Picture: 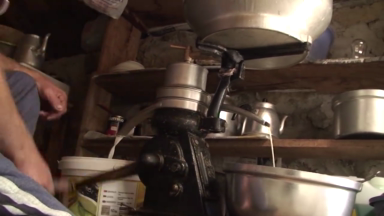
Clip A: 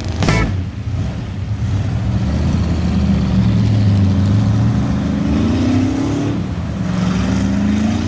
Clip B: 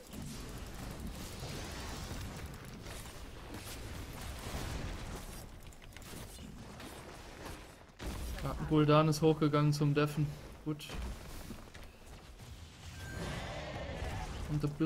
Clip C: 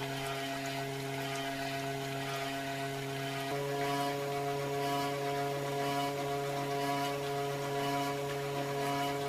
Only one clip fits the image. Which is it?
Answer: C